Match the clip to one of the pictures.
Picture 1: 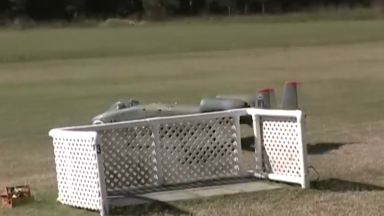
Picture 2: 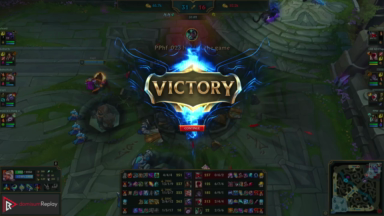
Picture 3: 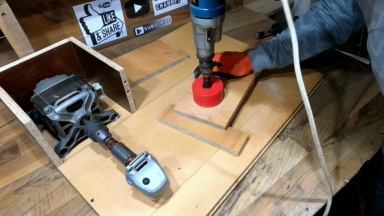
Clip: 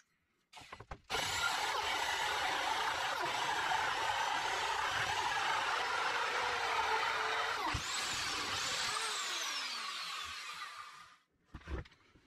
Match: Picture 3